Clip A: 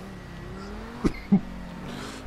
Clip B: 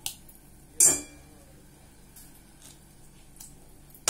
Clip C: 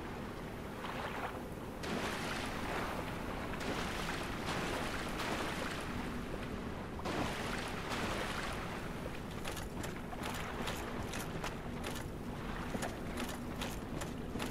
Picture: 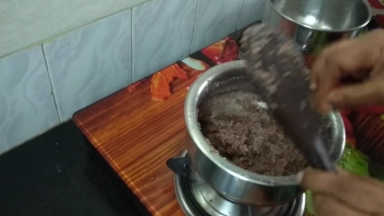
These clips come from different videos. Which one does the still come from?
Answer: B